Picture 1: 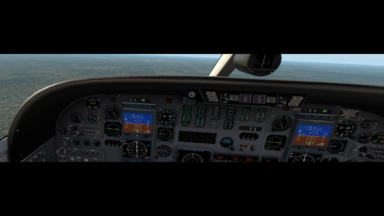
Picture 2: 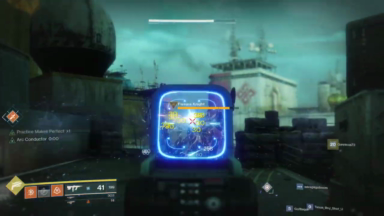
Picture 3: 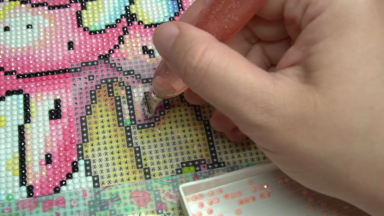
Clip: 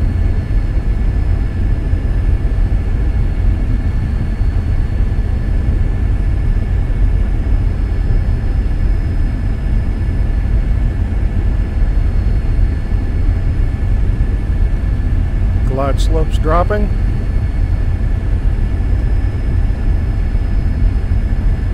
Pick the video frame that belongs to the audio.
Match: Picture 1